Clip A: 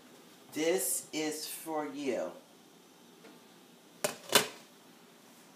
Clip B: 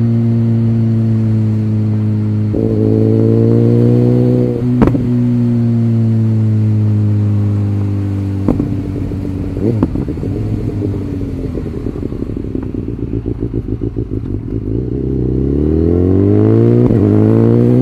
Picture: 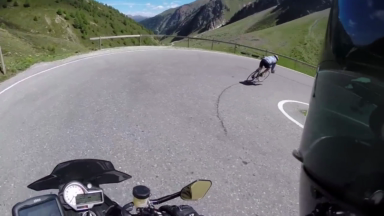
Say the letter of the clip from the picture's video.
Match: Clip B